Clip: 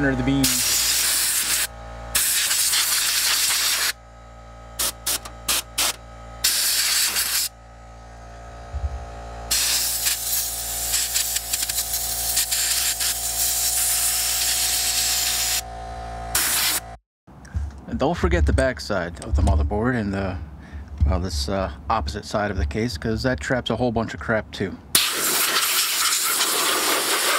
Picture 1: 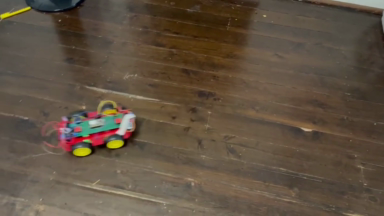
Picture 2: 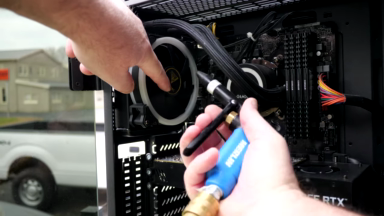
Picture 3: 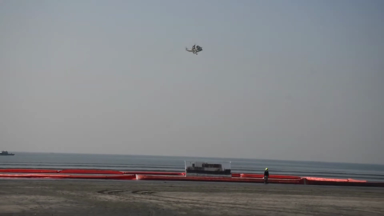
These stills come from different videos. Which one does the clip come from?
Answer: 2